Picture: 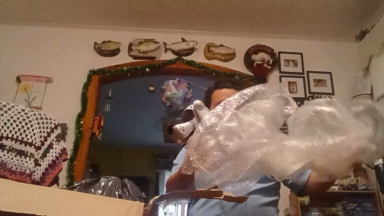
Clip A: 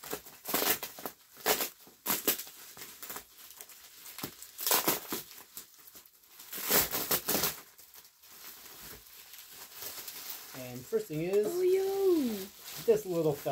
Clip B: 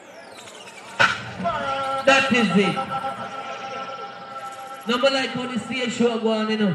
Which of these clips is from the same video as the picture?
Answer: A